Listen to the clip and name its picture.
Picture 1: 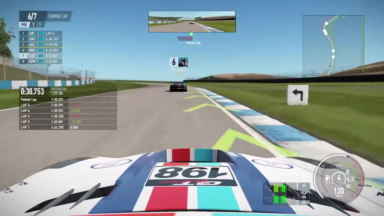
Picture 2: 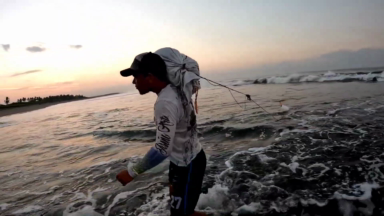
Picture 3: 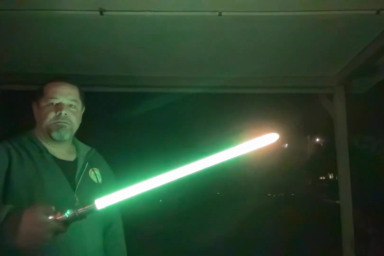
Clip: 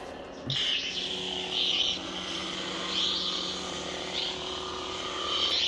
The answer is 3